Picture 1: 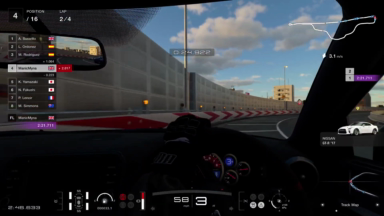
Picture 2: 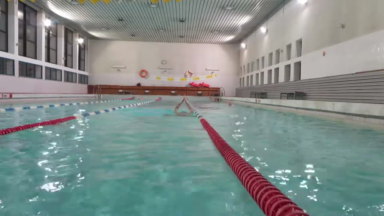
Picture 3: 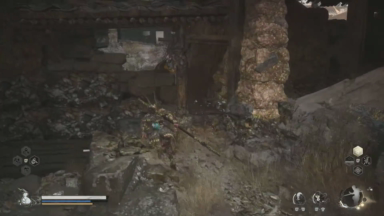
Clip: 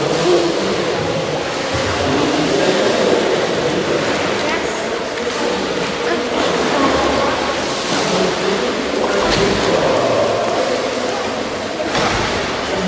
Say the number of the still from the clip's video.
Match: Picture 2